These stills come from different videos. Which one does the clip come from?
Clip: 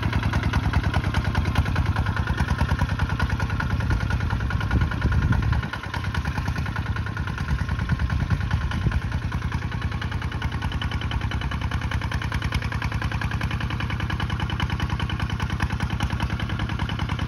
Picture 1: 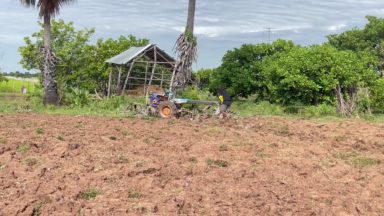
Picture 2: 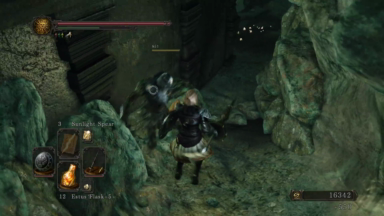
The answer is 1